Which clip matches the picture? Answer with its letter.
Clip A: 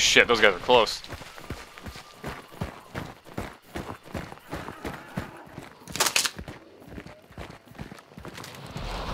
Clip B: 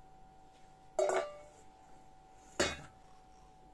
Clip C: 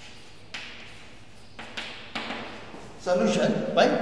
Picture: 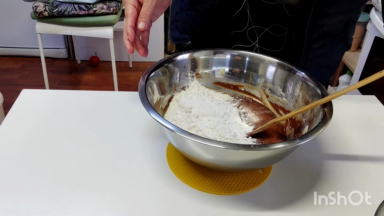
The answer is B